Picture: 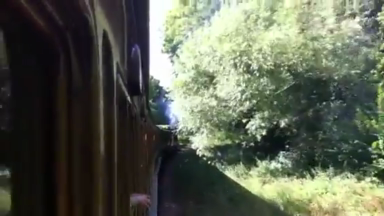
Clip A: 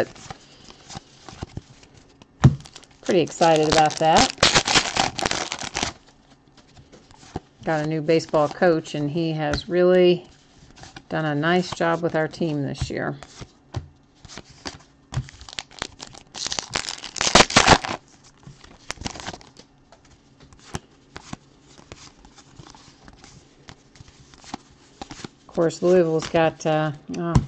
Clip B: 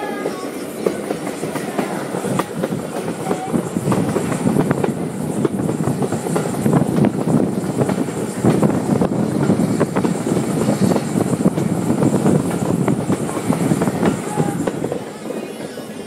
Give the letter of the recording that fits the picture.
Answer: B